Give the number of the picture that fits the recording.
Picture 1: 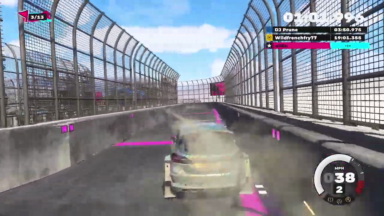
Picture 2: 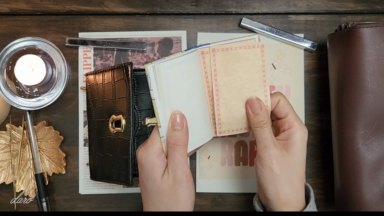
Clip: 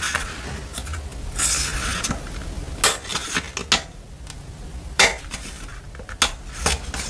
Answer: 2